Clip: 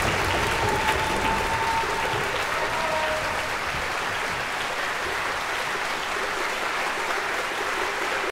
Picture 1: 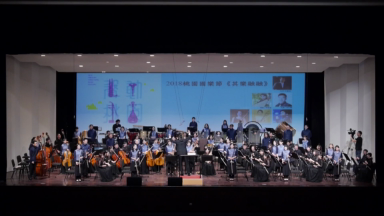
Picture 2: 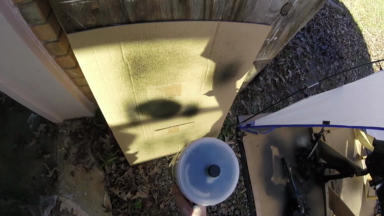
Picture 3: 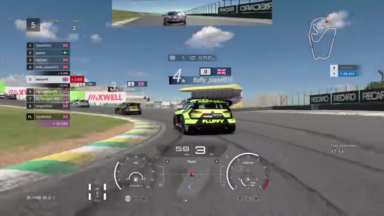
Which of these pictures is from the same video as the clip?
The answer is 1